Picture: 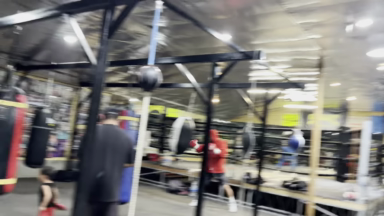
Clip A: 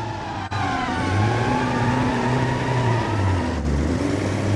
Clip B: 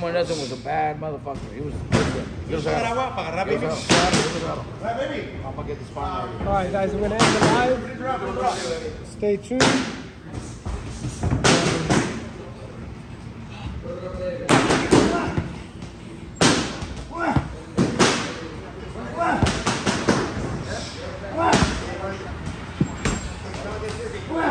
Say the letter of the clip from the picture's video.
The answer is B